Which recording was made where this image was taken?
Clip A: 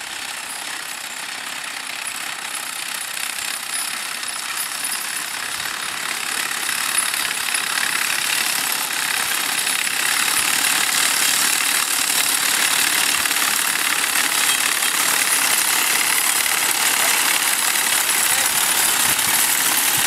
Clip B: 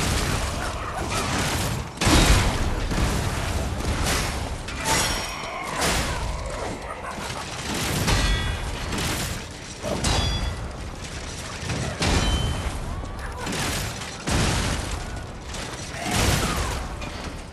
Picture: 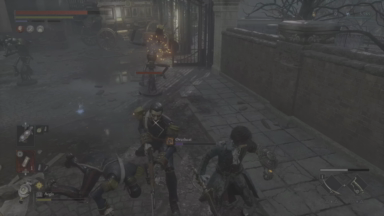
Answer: B